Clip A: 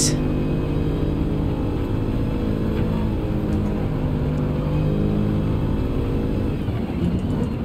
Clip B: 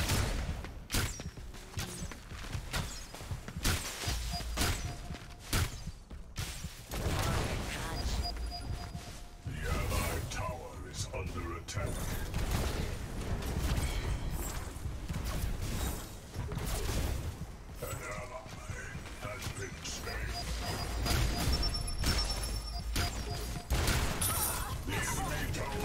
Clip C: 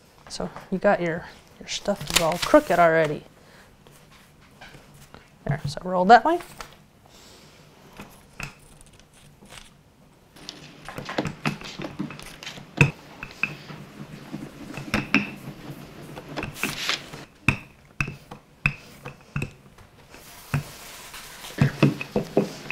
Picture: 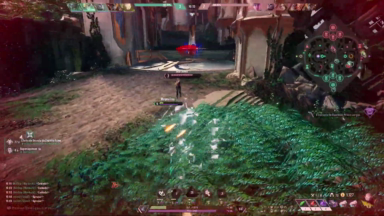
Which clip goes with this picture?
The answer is B